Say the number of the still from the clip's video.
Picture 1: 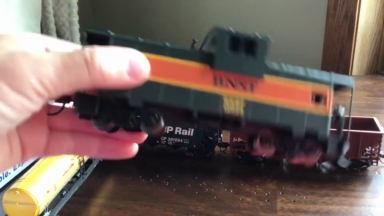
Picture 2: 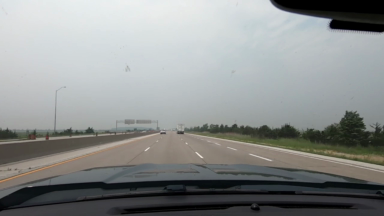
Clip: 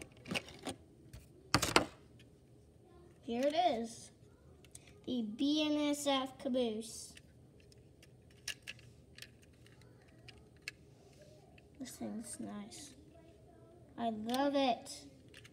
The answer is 1